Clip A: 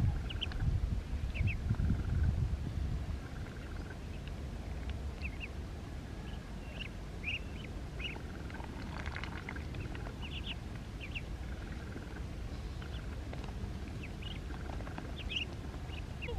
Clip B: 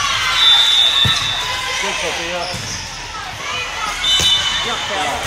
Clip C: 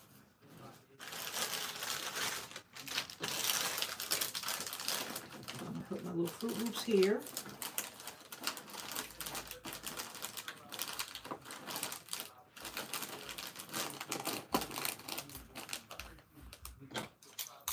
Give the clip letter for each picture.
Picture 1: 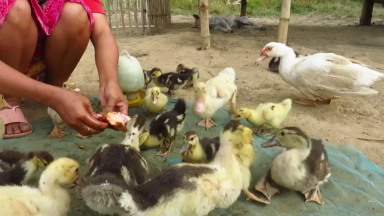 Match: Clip A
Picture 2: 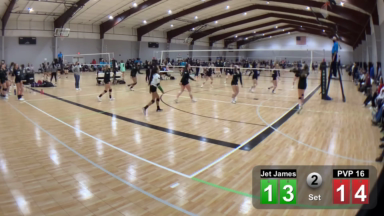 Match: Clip B